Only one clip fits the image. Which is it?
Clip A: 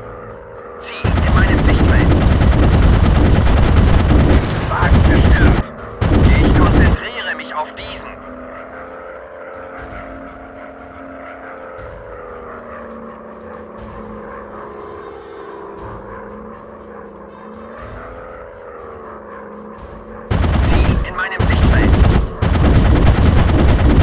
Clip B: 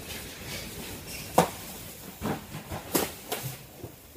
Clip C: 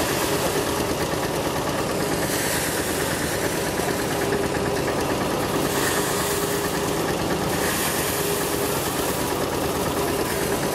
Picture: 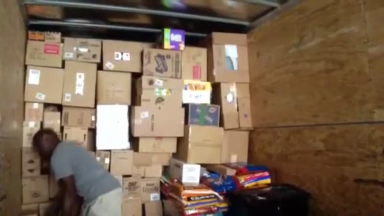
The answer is B